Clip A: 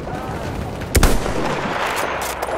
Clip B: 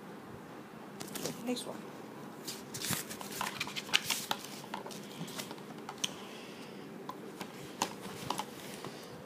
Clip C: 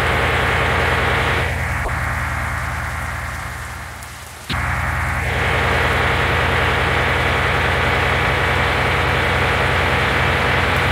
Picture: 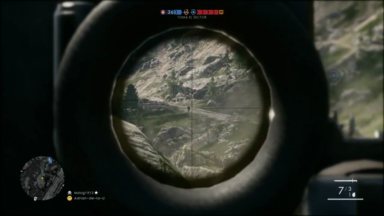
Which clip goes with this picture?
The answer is A